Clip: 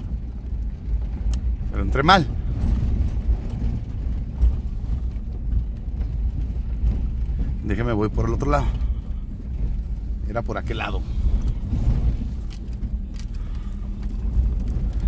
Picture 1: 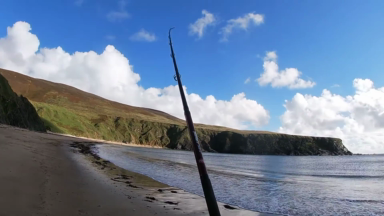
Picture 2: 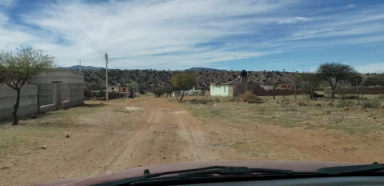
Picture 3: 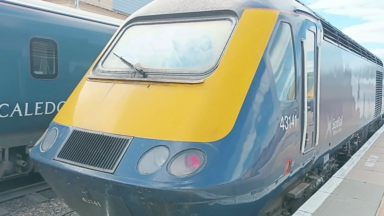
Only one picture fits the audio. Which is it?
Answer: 2